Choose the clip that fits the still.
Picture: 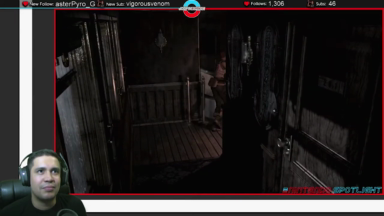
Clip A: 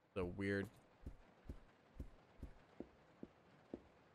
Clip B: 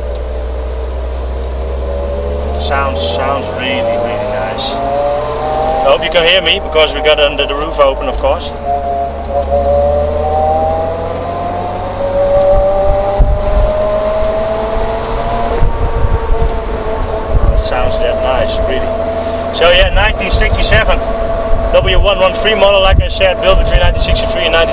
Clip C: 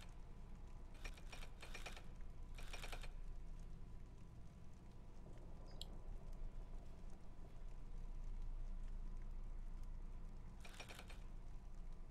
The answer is A